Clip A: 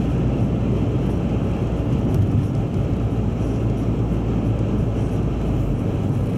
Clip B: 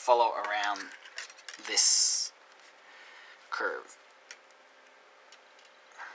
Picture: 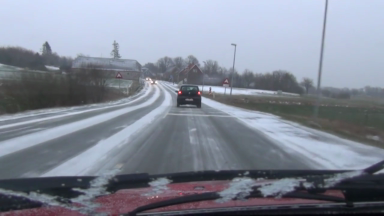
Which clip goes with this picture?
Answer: A